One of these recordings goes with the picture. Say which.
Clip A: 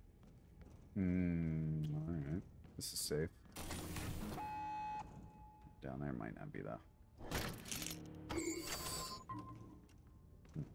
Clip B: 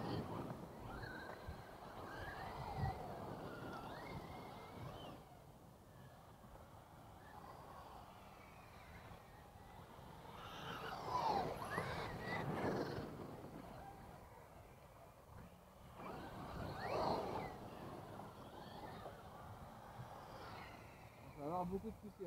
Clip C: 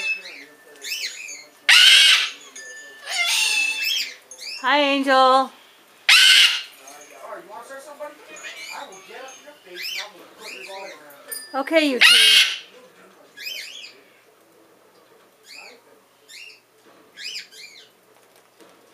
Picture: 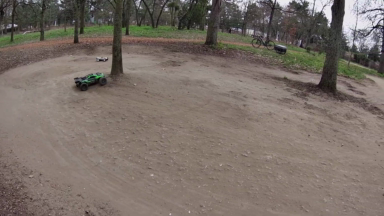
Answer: B